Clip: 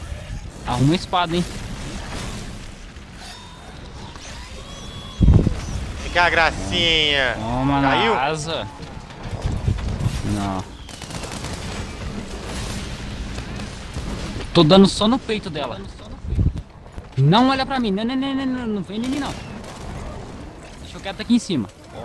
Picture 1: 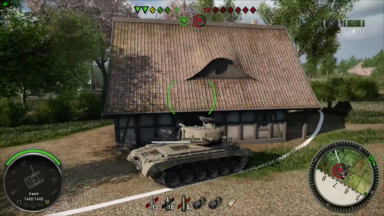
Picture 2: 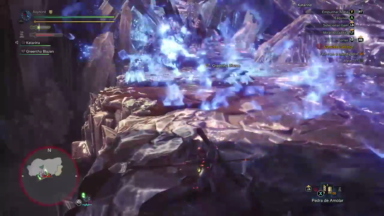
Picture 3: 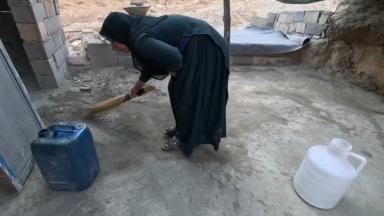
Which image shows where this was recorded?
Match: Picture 2